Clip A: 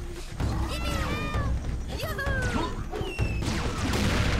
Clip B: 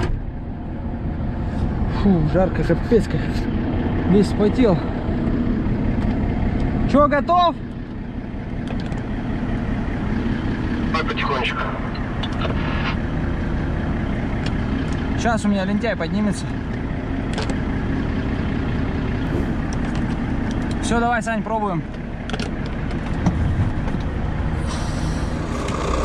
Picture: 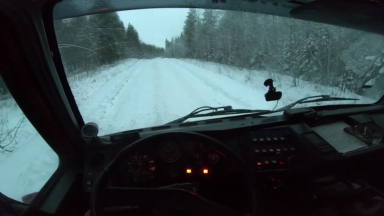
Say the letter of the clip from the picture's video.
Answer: B